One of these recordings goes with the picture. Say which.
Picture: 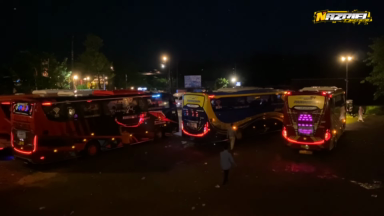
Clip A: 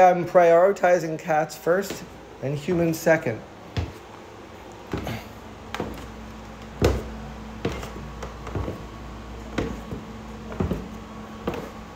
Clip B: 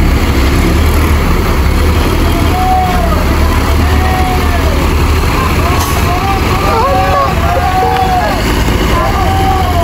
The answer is B